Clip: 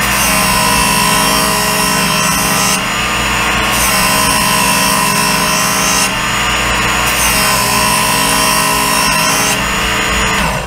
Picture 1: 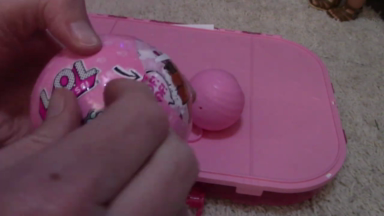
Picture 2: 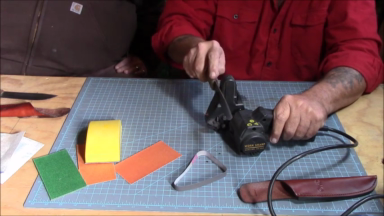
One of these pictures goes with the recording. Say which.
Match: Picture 2